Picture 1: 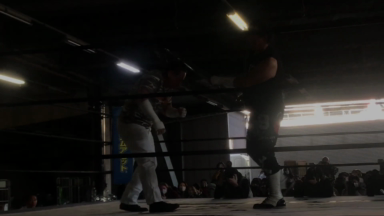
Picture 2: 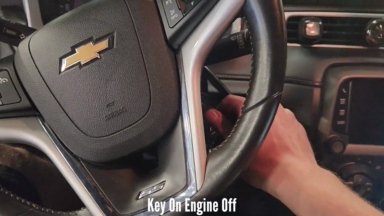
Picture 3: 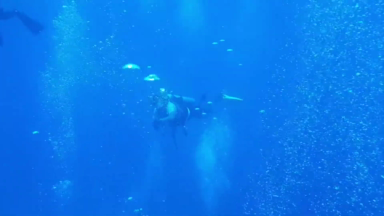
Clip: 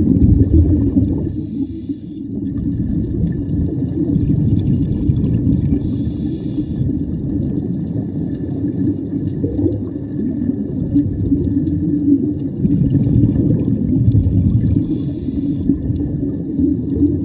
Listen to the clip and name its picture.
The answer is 3